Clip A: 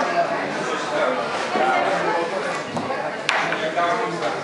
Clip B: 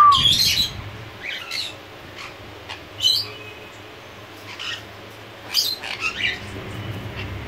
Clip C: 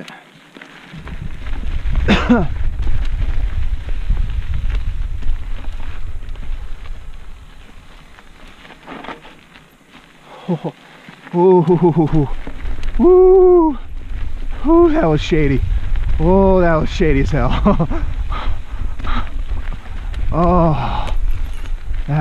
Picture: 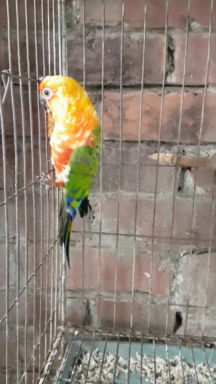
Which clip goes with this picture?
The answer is B